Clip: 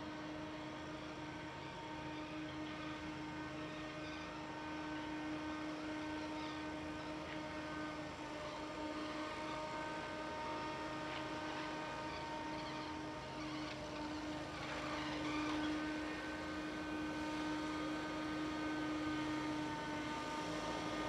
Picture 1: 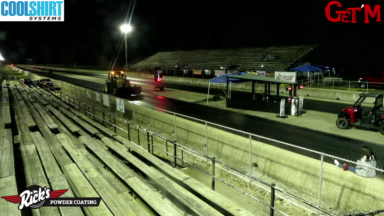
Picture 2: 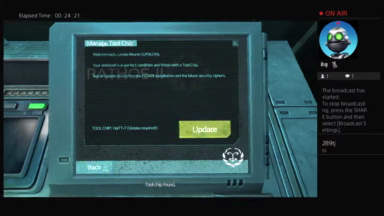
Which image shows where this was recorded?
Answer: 1